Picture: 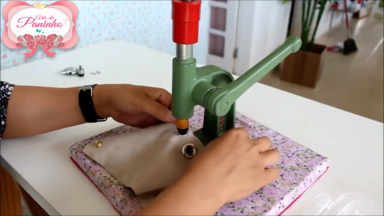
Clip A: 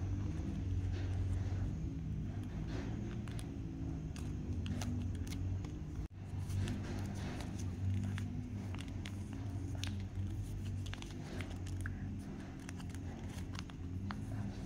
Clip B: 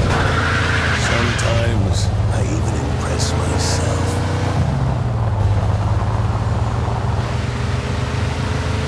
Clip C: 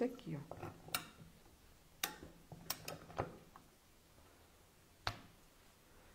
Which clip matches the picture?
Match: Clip C